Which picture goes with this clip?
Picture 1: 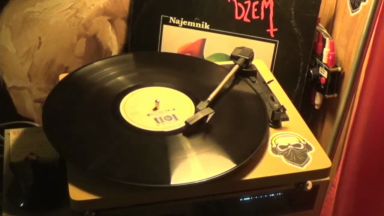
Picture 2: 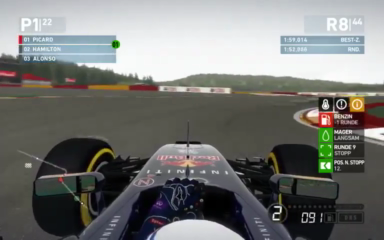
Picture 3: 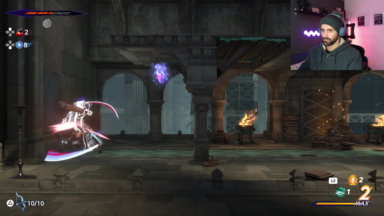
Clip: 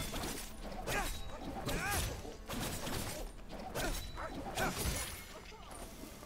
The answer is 3